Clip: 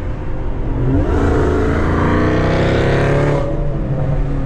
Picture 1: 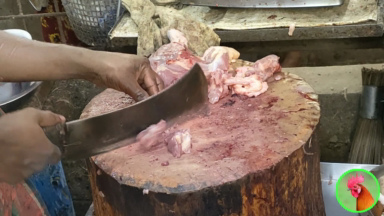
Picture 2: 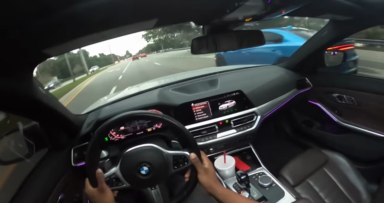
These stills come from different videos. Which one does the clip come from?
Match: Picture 2